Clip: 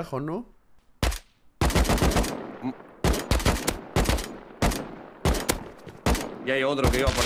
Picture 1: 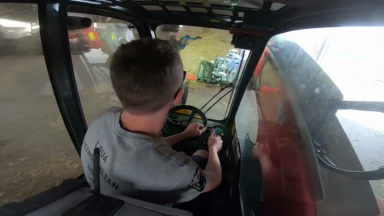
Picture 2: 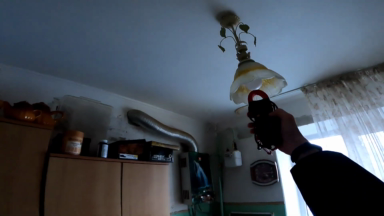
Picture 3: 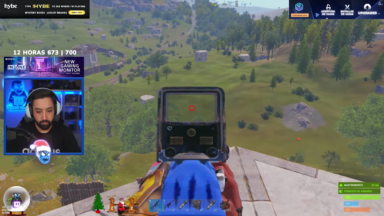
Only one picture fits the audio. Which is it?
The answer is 3